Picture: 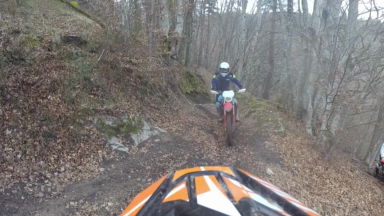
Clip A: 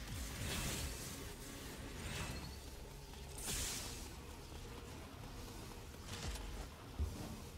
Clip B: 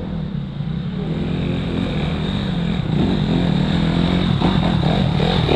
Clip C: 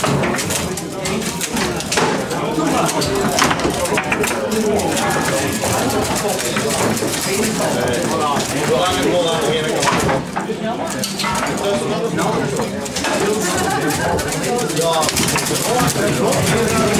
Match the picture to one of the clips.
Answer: B